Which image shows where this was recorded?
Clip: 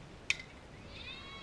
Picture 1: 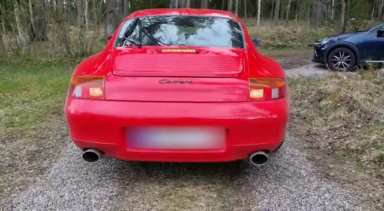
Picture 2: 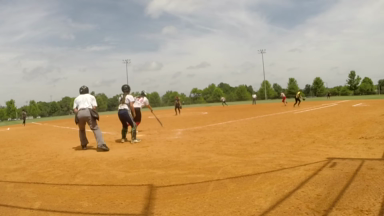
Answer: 2